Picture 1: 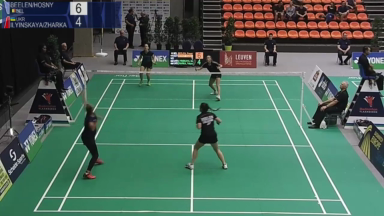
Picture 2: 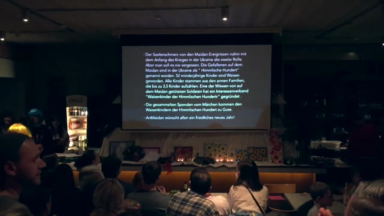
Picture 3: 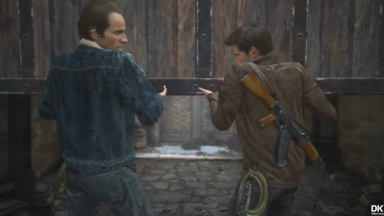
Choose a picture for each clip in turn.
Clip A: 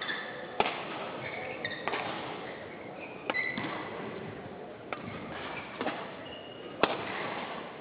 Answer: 1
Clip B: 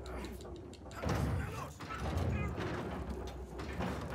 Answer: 3